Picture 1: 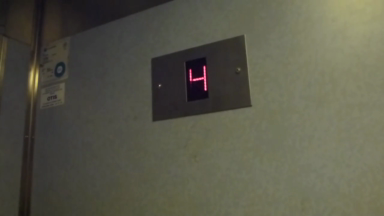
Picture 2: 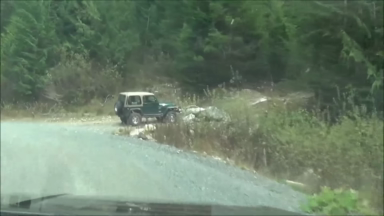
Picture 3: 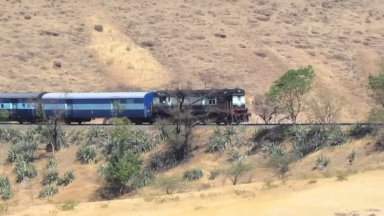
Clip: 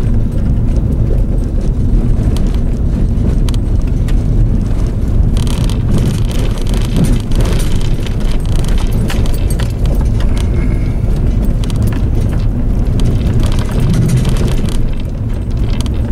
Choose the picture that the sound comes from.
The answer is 2